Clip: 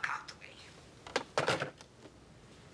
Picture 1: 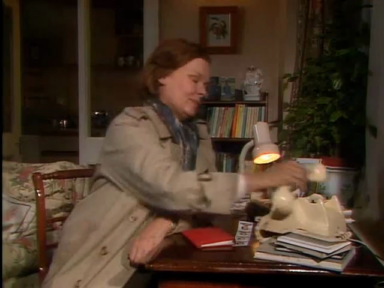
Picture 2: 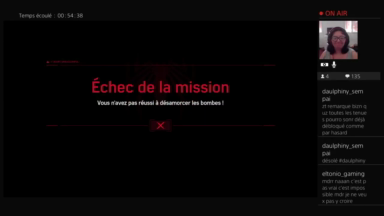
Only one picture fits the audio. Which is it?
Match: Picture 1